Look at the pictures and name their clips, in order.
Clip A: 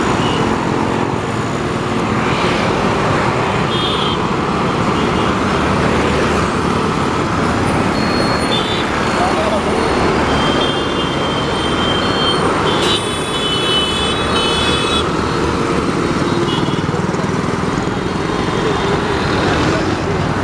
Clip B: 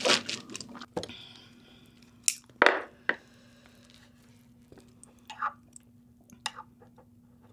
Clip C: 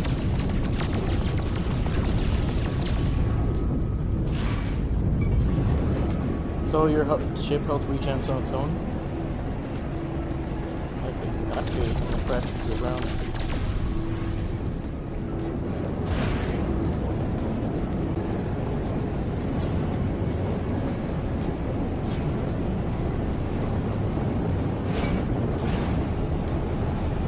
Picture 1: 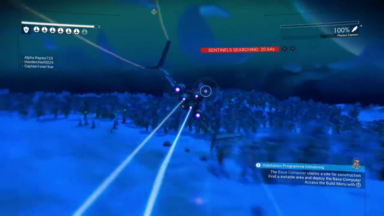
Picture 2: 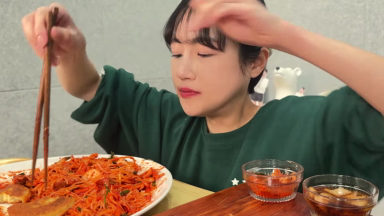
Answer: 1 C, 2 B